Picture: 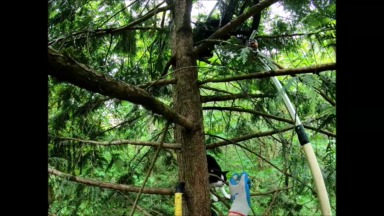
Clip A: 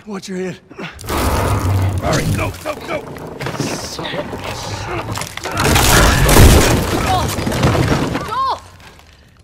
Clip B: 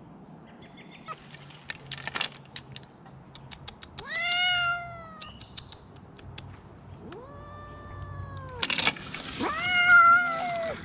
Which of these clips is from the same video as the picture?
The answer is B